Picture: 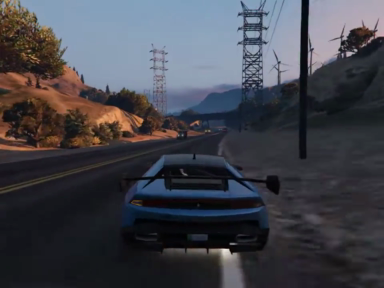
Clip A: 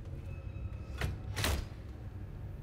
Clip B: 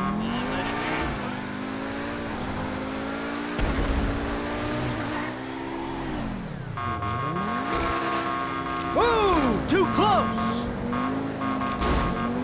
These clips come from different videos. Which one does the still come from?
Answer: B